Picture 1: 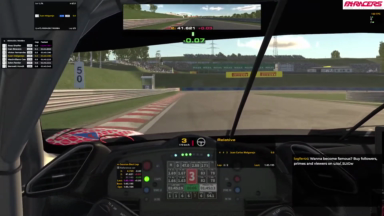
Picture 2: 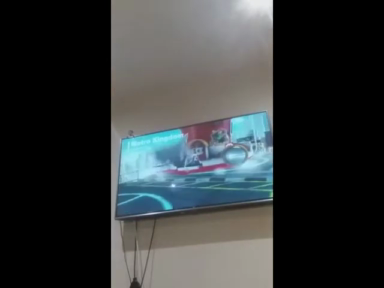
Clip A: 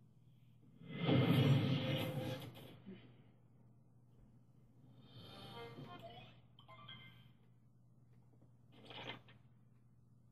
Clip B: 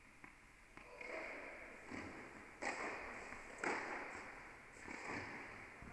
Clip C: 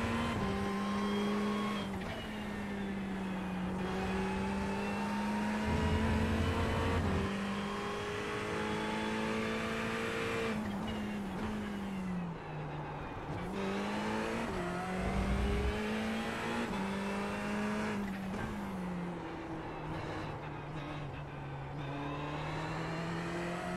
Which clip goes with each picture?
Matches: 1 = C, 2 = A